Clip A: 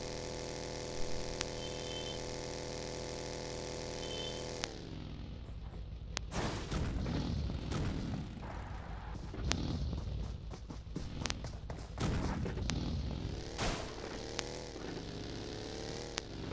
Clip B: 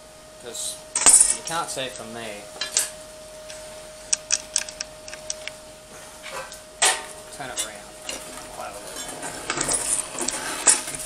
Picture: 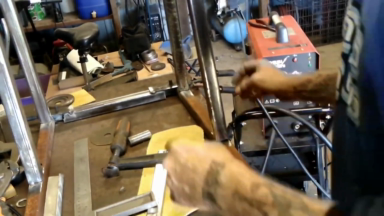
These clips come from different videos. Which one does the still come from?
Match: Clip B